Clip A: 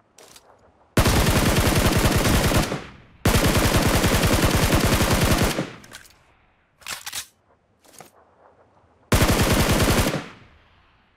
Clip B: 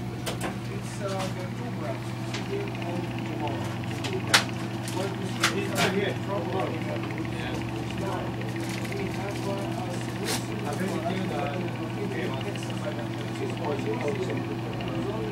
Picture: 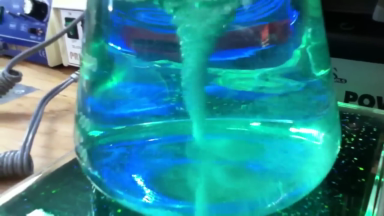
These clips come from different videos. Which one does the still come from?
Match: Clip B